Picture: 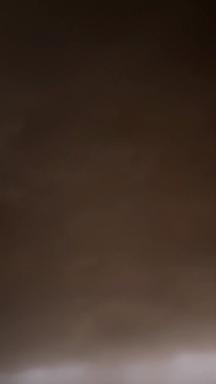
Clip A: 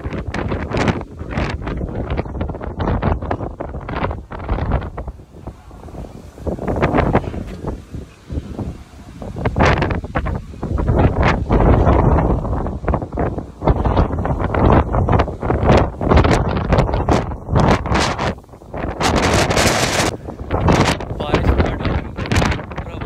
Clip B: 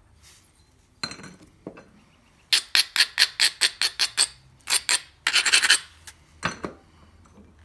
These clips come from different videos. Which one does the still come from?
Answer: A